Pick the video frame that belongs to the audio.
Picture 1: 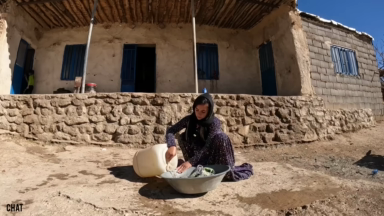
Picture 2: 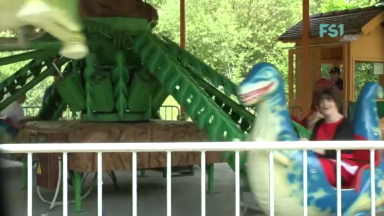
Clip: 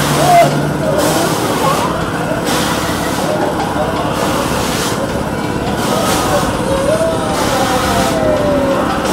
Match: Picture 2